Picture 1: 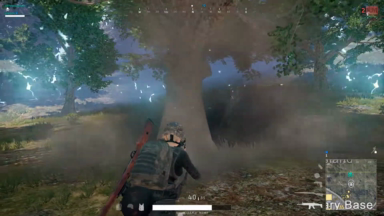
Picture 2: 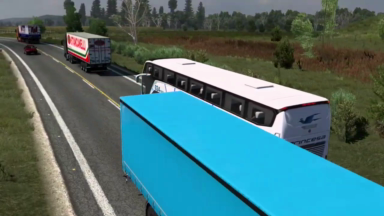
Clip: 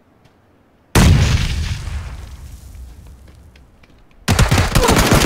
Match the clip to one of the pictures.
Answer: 1